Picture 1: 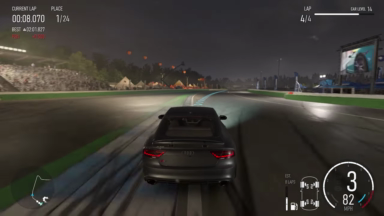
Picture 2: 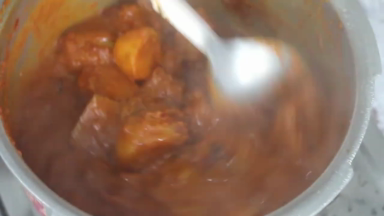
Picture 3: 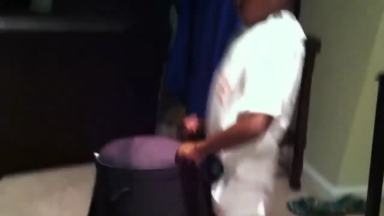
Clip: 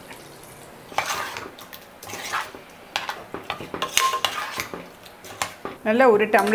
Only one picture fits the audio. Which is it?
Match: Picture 2